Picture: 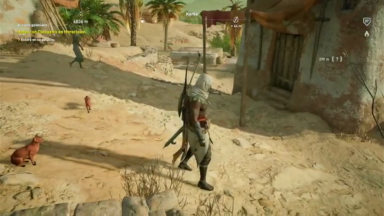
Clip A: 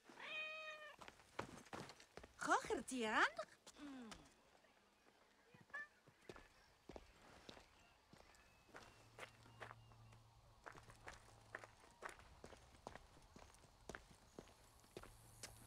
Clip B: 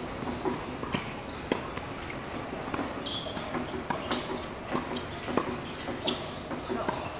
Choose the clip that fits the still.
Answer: A